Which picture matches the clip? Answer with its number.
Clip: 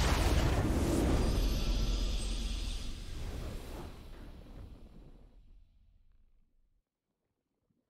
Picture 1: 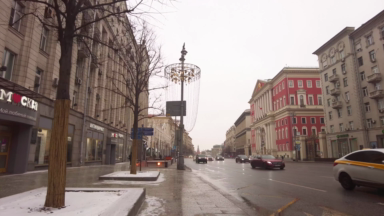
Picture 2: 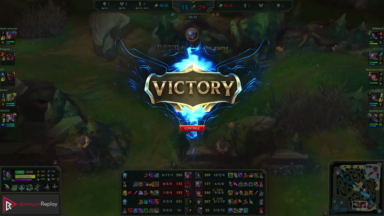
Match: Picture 2